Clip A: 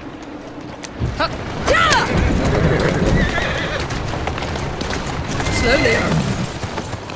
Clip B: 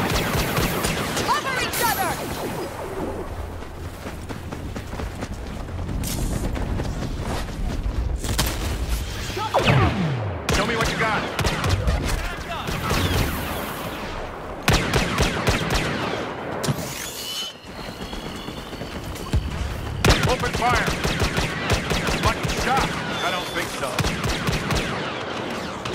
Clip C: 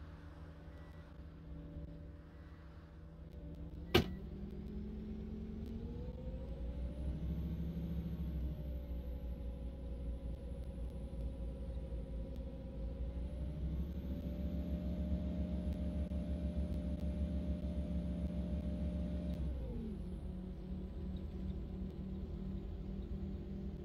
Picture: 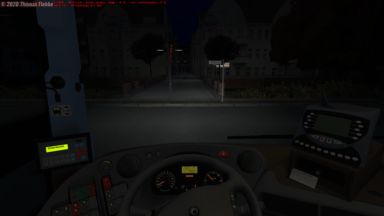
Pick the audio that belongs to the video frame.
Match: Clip C